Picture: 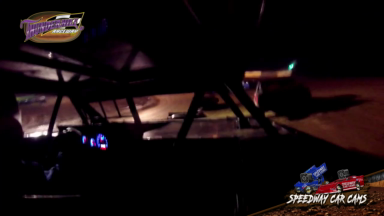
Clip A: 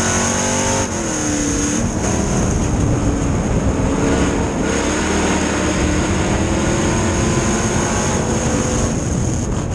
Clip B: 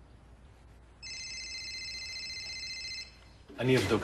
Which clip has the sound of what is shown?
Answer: A